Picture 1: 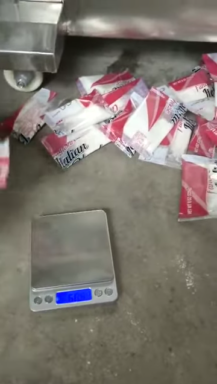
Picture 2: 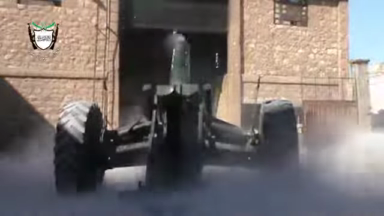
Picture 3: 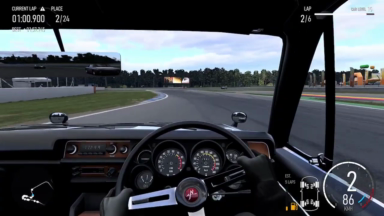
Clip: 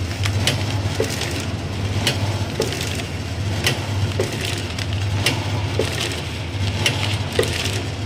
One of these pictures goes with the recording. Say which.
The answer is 1